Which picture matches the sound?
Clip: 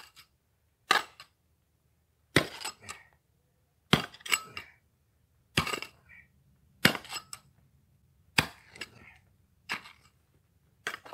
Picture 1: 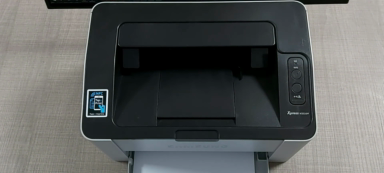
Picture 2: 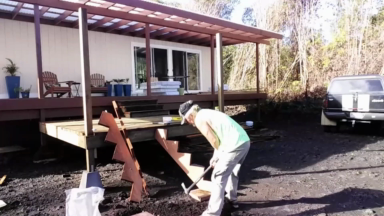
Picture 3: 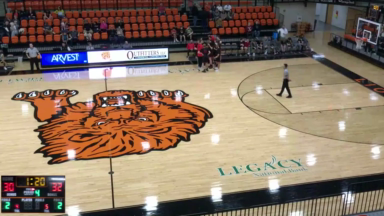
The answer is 2